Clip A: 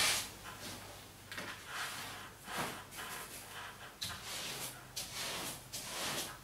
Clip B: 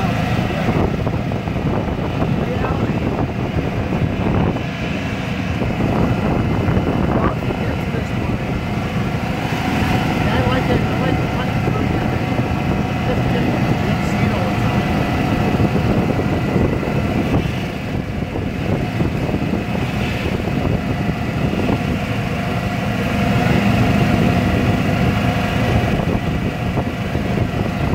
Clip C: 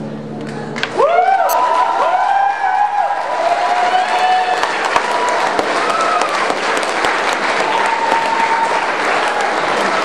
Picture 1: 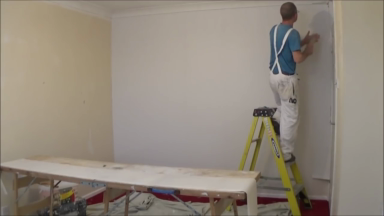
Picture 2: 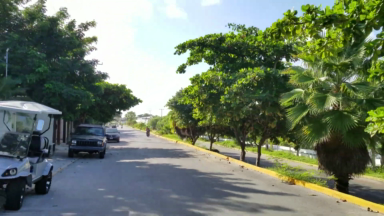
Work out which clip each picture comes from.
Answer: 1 A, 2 B